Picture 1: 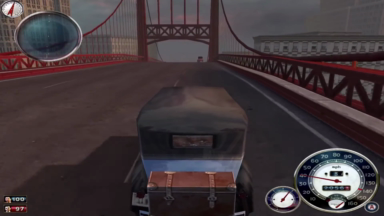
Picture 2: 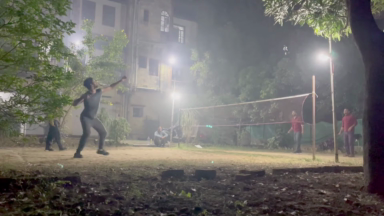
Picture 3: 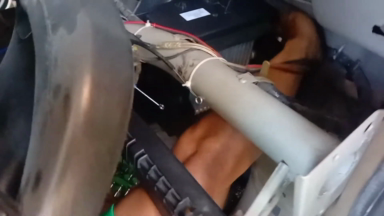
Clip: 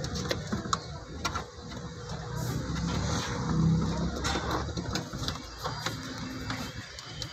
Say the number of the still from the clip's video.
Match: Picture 3